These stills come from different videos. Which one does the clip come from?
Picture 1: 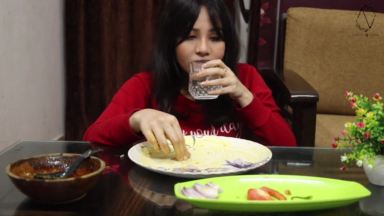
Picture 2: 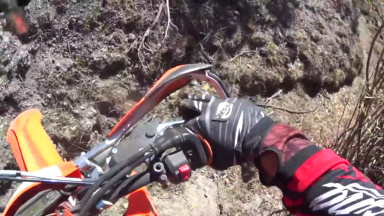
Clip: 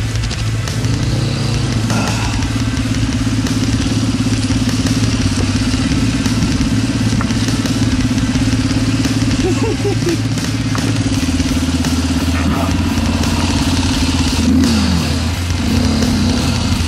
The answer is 2